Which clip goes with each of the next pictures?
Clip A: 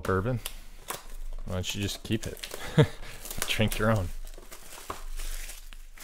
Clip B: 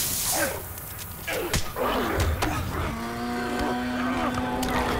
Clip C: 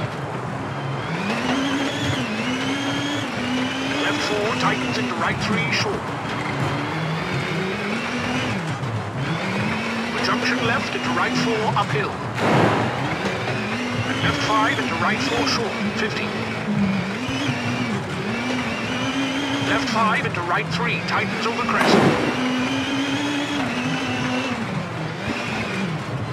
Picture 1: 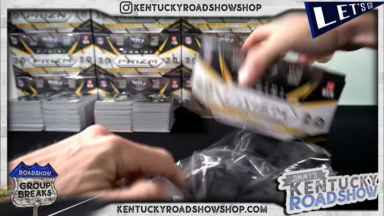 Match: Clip A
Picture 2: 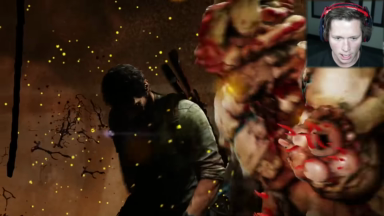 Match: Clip B